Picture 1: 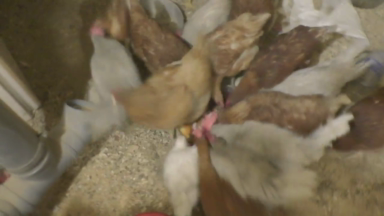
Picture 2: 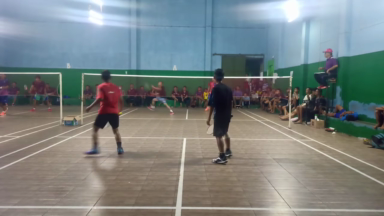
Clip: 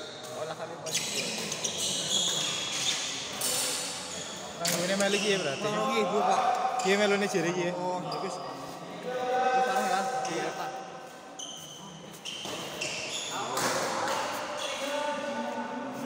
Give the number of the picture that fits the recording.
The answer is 2